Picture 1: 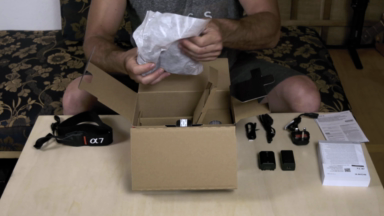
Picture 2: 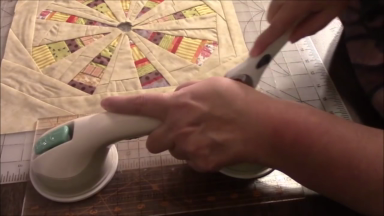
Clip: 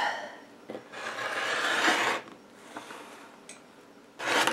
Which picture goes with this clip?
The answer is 2